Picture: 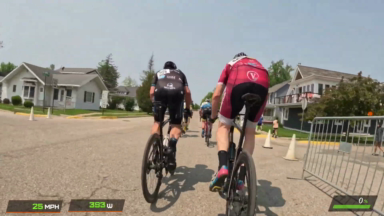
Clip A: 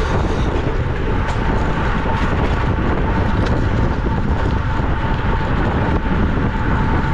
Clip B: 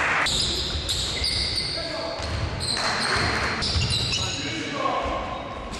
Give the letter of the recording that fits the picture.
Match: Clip A